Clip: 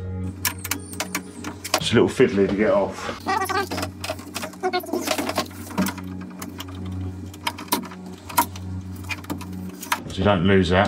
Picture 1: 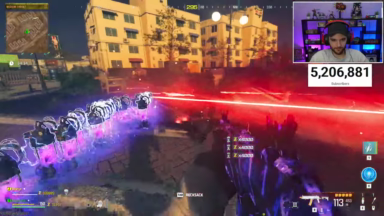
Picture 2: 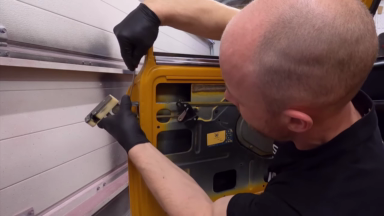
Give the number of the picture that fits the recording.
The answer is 2